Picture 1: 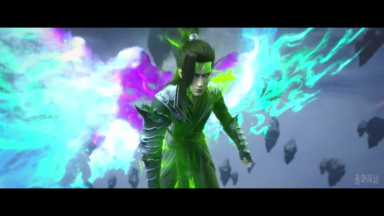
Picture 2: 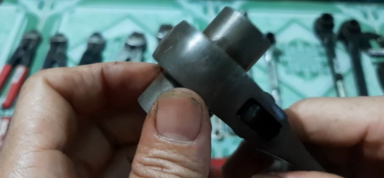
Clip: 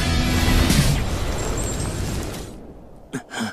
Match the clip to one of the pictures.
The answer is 1